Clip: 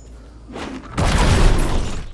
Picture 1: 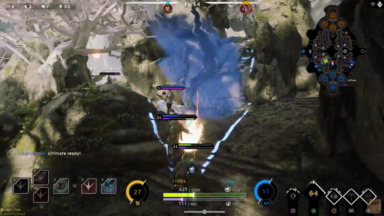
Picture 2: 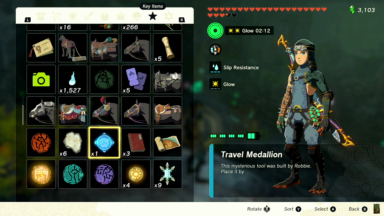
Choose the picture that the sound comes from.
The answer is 1